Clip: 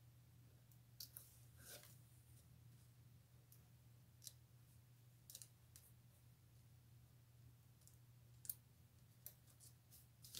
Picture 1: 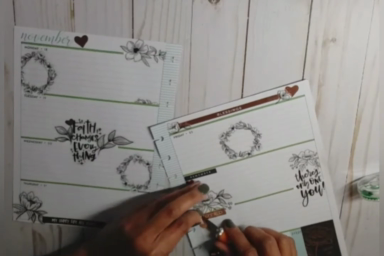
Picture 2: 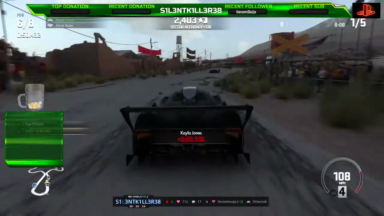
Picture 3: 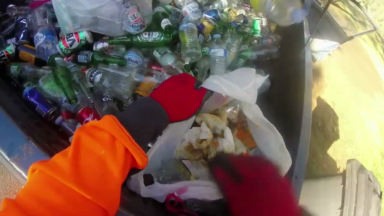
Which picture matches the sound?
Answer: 1